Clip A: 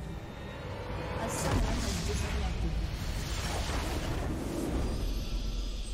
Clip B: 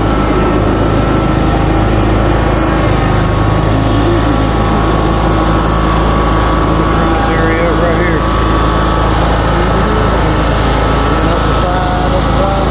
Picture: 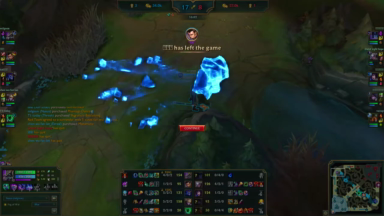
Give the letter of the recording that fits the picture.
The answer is A